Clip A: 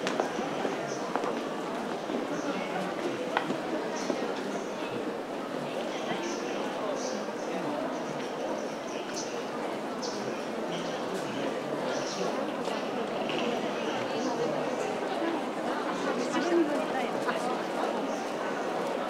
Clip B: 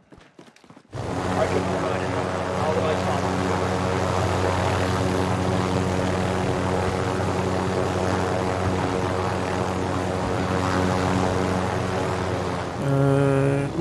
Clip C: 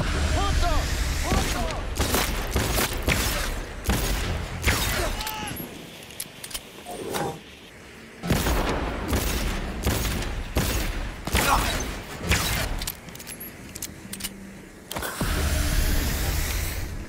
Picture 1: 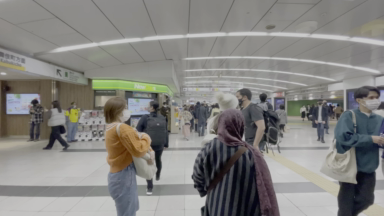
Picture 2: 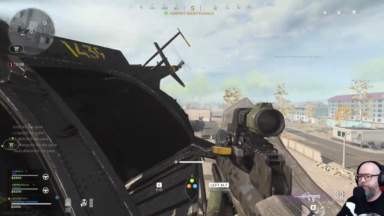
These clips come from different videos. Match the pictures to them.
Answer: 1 A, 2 B